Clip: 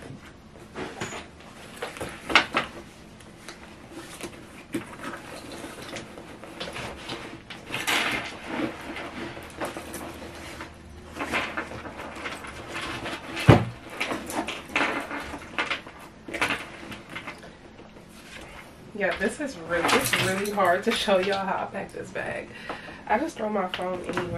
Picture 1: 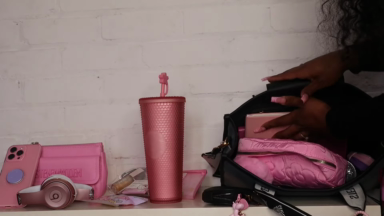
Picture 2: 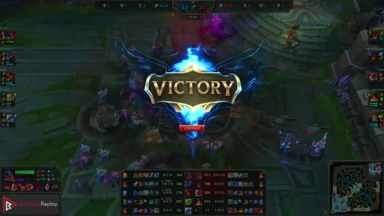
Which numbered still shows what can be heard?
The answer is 1